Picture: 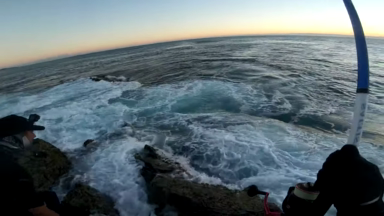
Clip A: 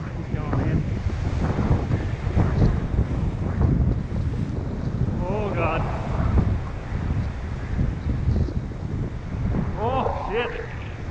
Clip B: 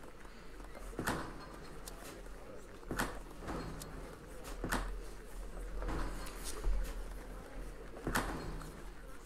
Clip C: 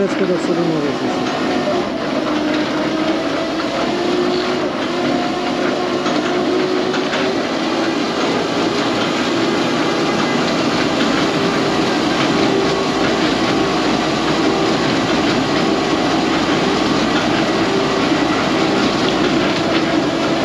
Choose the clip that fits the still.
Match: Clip A